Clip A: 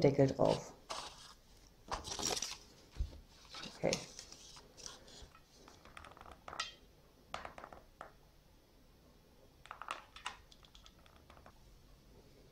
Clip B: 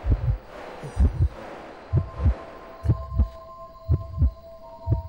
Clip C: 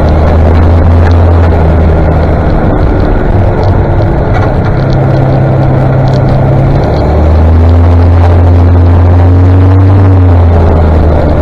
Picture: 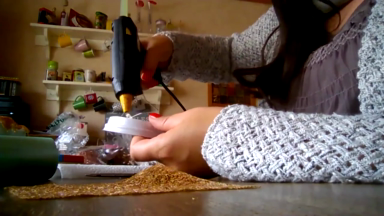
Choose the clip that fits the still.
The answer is A